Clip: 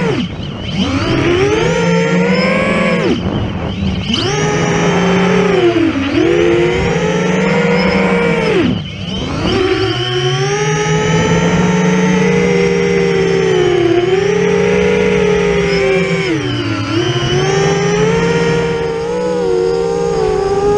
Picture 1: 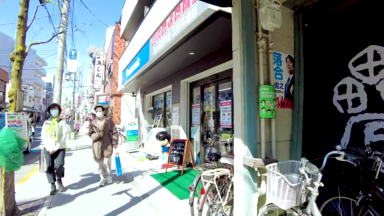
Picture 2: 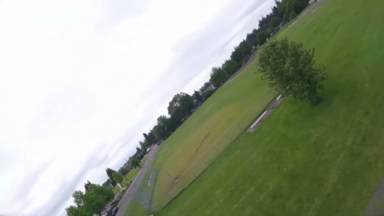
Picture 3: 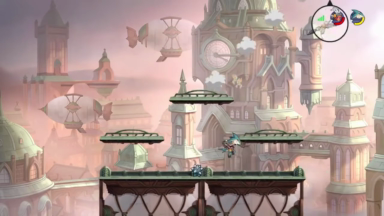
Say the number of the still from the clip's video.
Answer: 2